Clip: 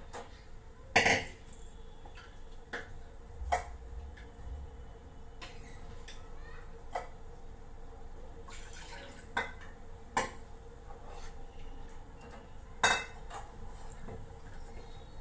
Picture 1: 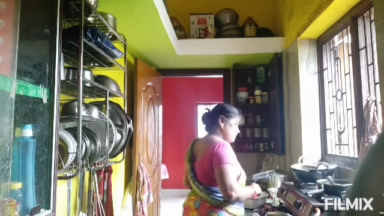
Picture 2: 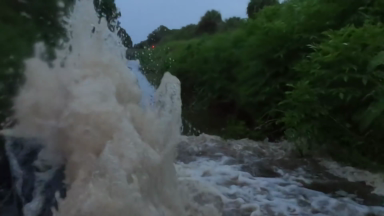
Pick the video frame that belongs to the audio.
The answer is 1